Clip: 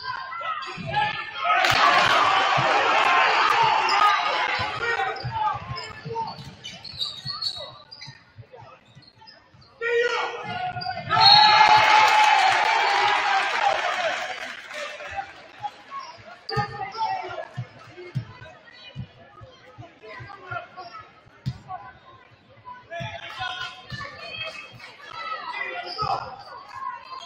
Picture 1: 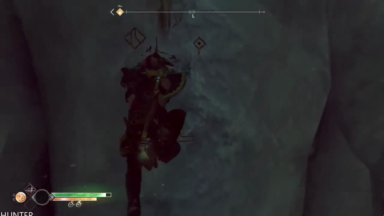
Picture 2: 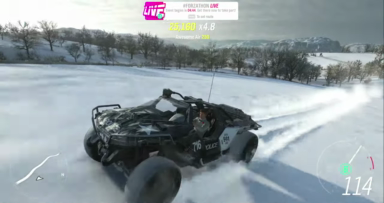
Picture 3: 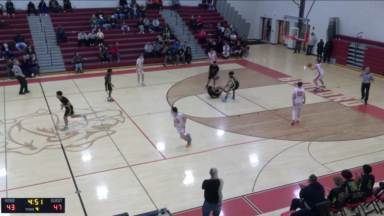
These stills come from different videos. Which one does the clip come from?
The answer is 3